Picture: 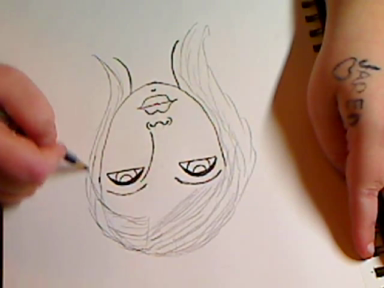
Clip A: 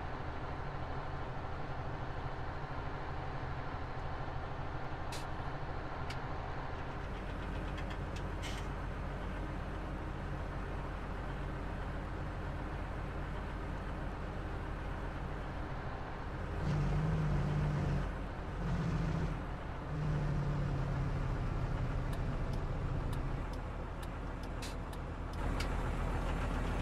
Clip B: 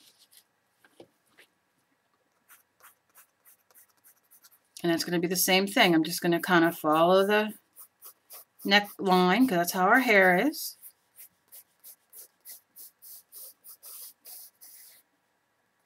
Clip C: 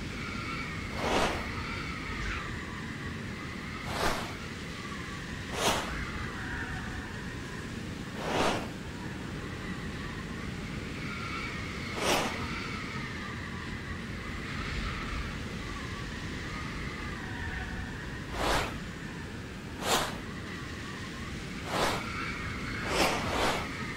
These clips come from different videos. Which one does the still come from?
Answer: B